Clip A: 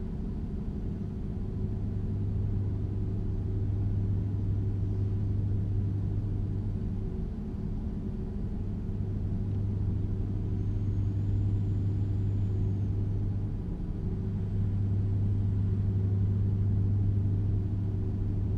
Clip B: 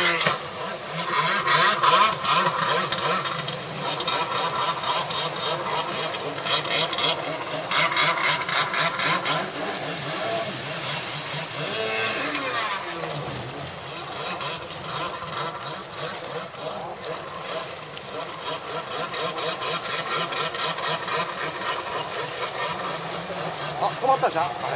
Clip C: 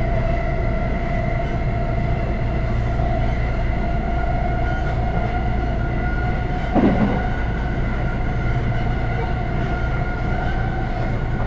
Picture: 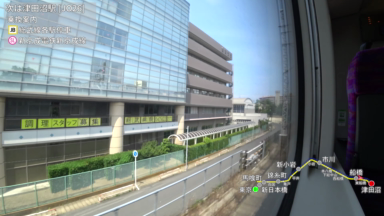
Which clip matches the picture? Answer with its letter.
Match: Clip C